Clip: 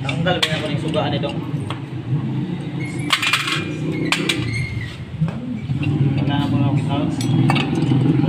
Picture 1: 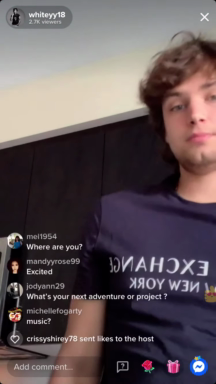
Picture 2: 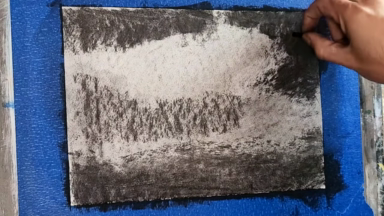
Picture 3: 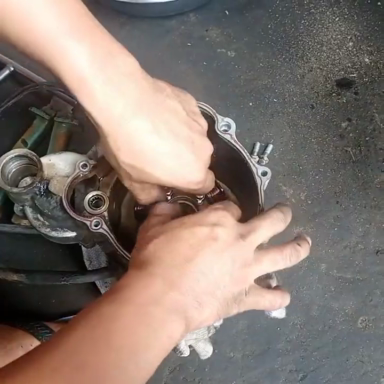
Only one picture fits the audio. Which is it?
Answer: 3